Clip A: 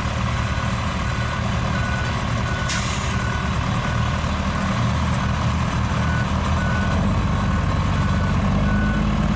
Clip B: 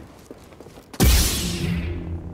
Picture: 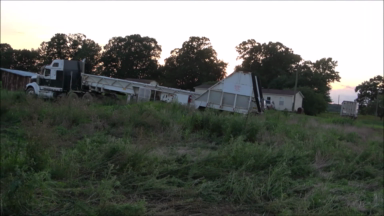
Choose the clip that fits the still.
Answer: A